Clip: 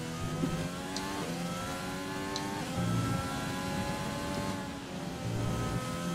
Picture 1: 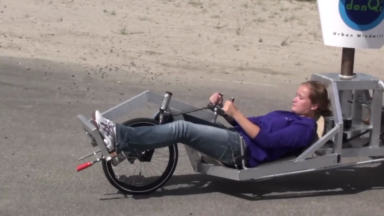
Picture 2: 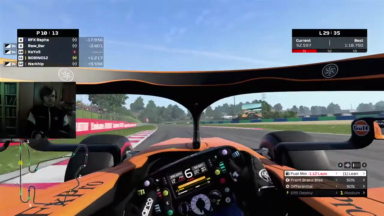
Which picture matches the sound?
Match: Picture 2